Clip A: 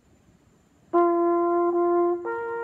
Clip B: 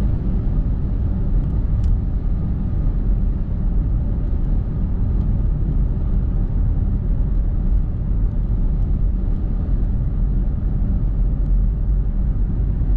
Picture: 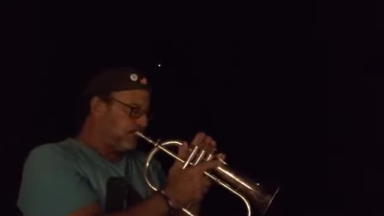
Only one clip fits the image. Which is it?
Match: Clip A